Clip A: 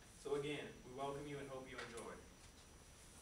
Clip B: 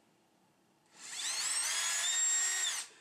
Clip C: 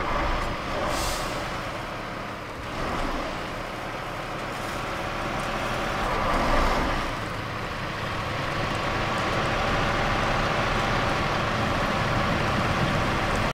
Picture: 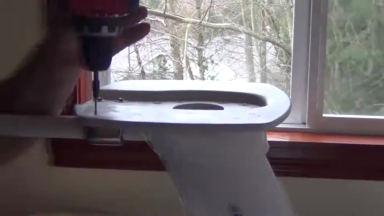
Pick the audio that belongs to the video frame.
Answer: B